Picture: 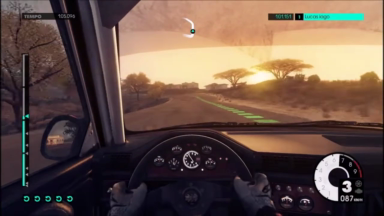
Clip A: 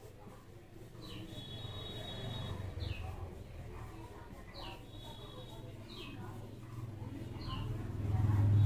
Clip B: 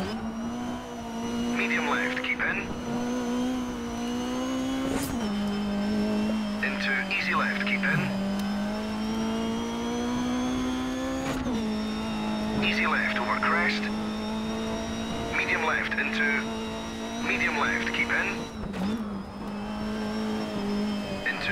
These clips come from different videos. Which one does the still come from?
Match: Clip B